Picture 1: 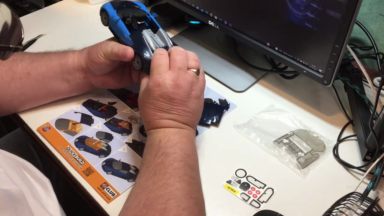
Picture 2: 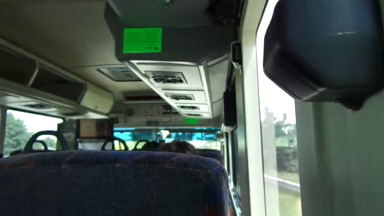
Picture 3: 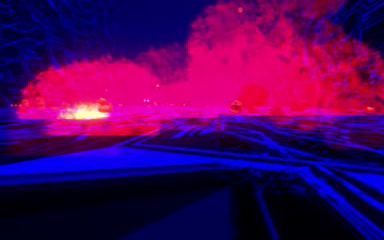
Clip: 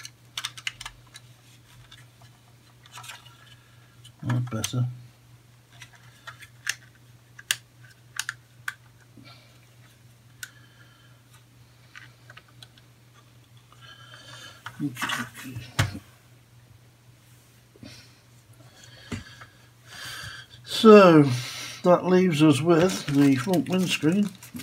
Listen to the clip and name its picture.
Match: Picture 1